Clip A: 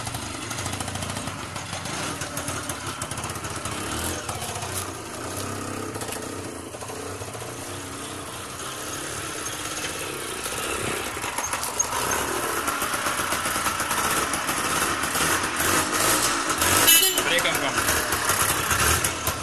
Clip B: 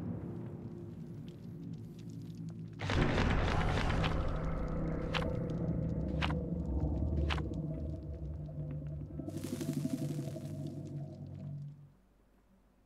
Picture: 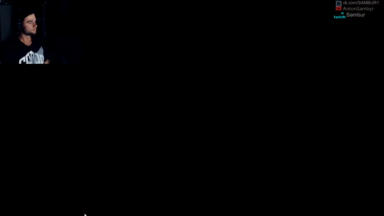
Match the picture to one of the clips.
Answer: B